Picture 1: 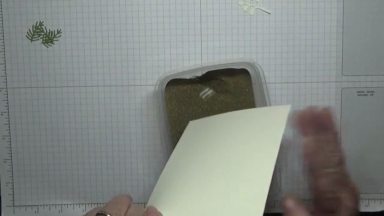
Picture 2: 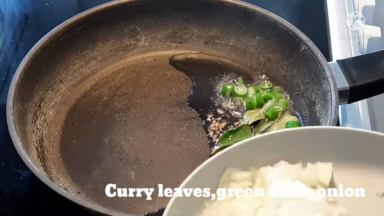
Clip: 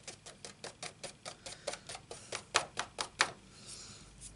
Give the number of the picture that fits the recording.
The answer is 1